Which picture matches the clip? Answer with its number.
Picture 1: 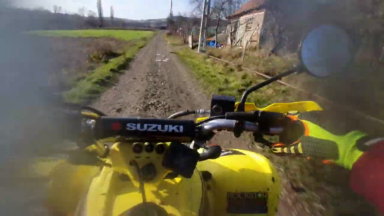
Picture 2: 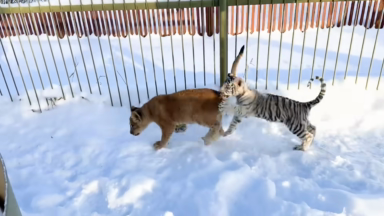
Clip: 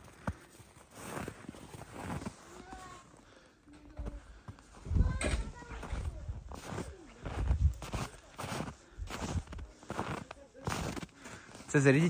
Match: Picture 2